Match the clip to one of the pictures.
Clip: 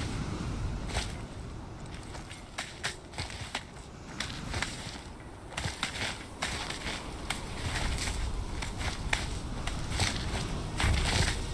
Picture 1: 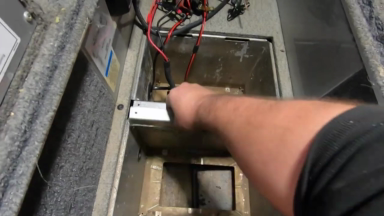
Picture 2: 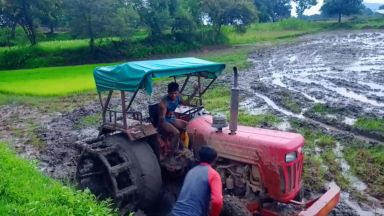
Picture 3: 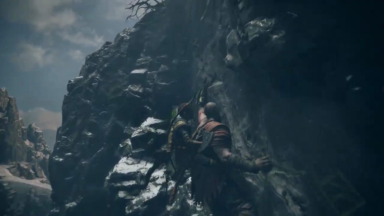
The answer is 3